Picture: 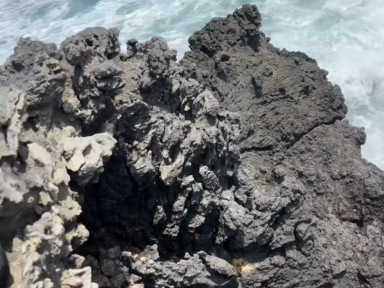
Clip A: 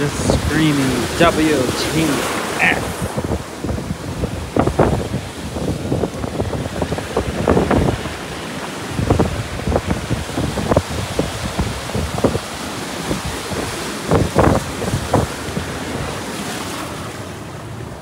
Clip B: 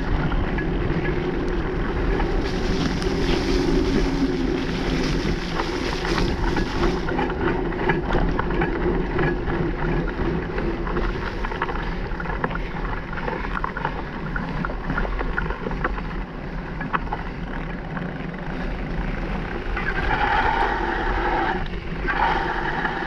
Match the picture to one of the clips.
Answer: A